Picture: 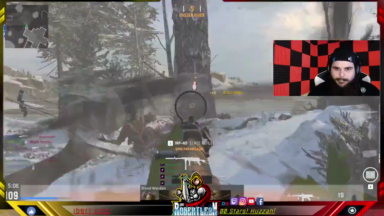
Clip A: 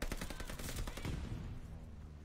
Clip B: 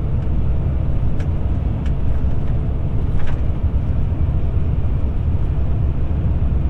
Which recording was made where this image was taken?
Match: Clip A